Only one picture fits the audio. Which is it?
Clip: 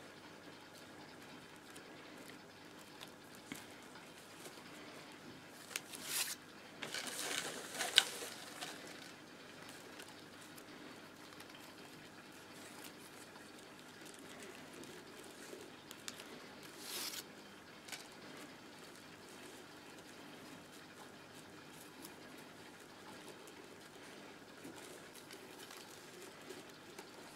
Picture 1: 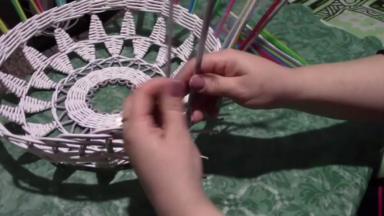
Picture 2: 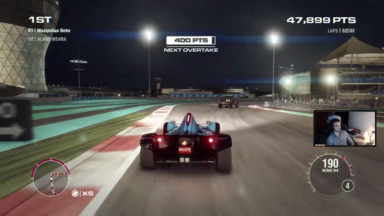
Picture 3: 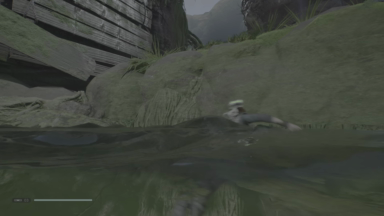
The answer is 1